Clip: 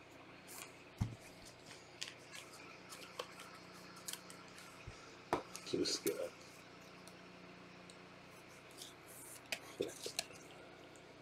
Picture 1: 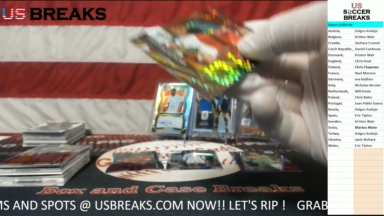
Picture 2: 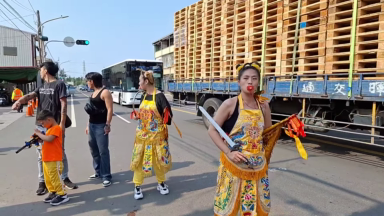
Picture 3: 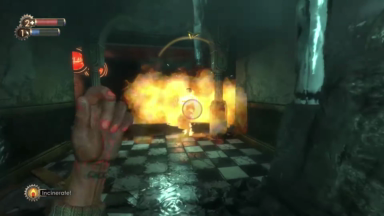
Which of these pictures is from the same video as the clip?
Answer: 1